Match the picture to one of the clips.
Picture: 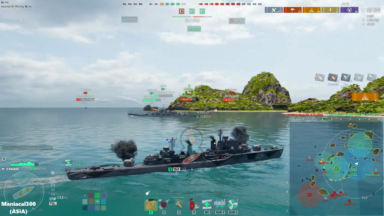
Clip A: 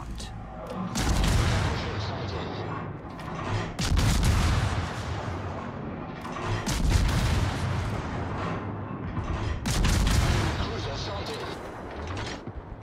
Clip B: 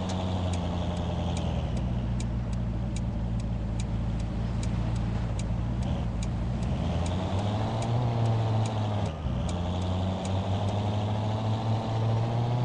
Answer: A